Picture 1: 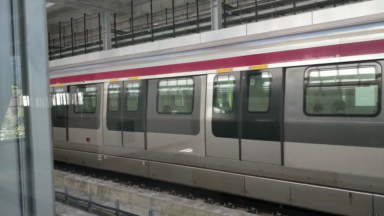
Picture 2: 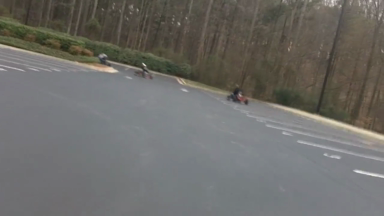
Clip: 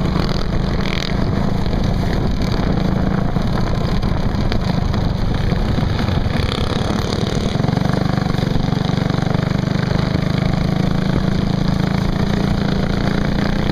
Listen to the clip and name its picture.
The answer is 2